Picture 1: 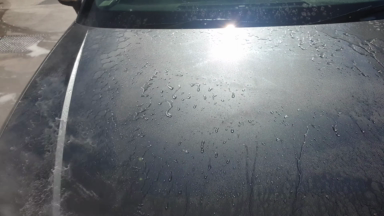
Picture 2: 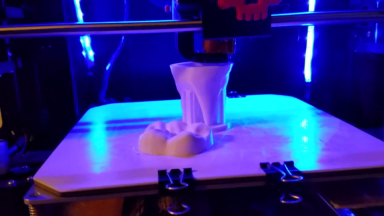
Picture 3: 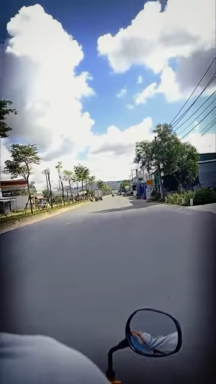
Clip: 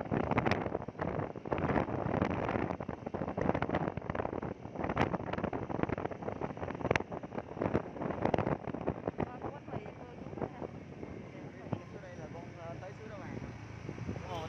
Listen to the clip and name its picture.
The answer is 3